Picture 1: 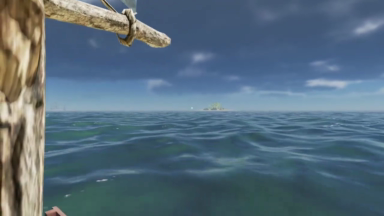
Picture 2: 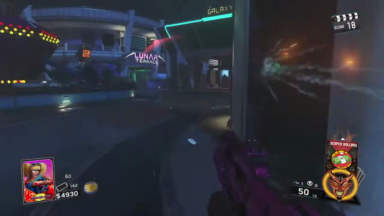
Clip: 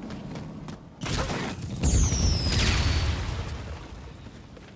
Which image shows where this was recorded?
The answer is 2